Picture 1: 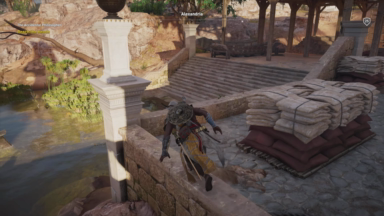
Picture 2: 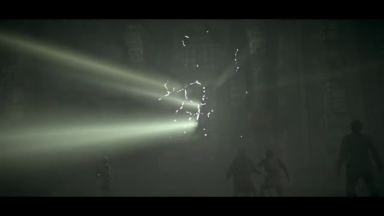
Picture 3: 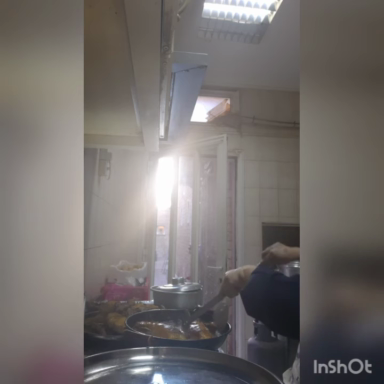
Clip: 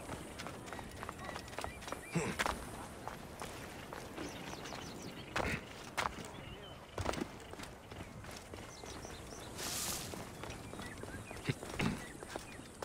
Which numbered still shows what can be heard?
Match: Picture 1